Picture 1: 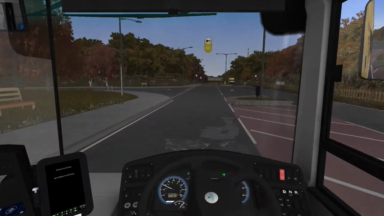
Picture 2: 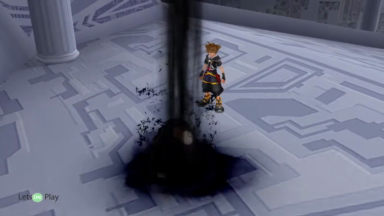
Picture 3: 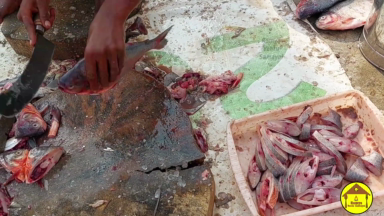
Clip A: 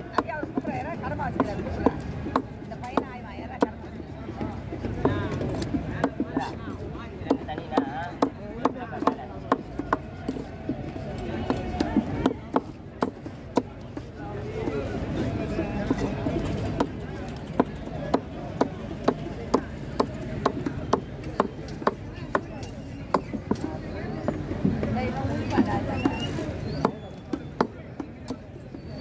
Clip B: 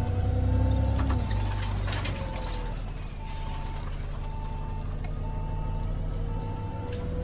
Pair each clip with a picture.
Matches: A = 3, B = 1